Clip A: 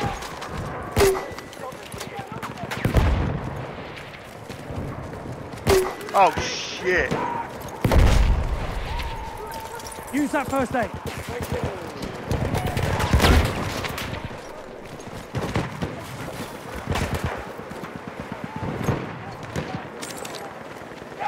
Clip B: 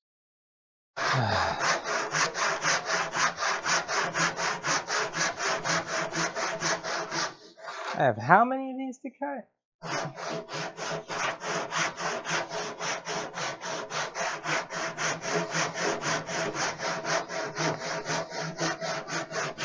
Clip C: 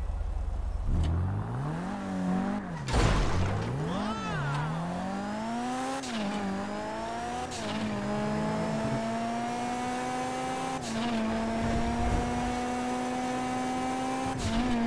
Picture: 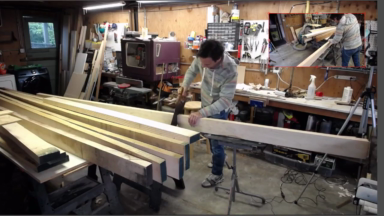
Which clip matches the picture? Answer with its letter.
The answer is B